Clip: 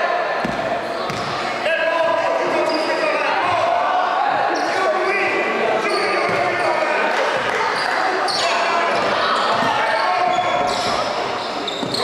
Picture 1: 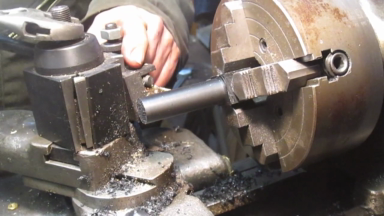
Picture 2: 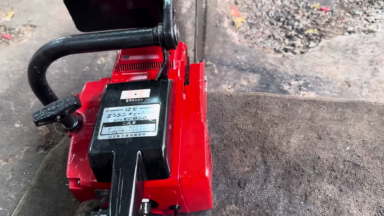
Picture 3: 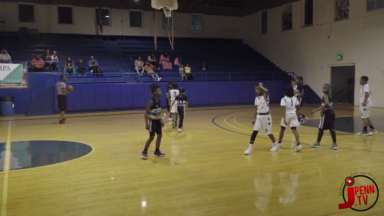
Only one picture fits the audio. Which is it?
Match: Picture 3